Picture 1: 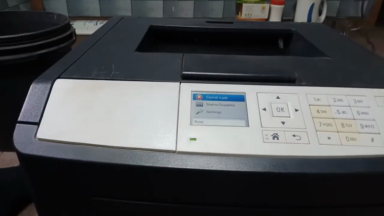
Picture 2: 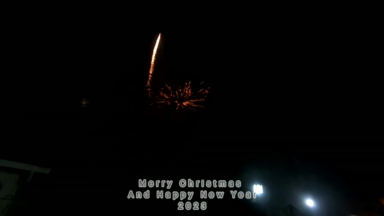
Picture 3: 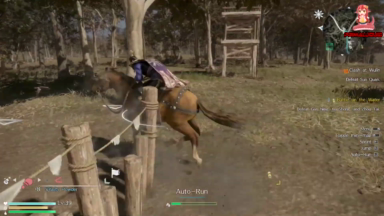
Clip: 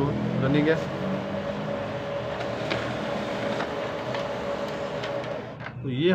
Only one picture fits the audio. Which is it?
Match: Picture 1